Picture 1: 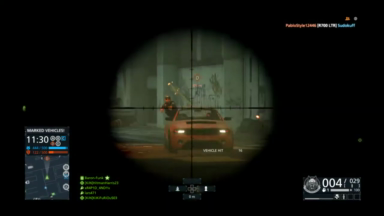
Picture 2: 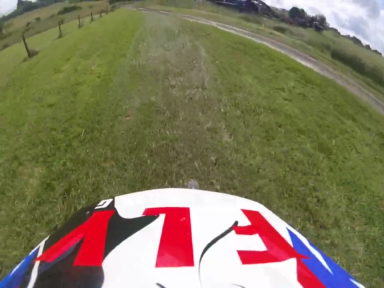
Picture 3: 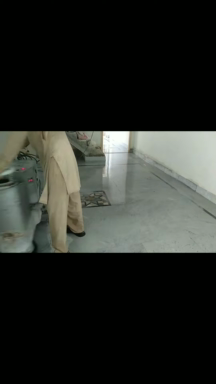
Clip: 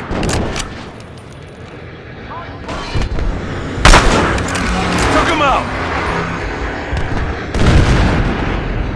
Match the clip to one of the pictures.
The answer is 1